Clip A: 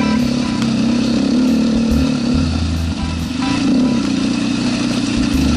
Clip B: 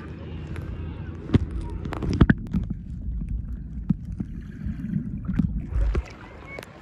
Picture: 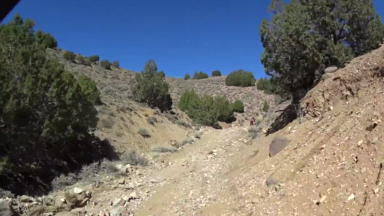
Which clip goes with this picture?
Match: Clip A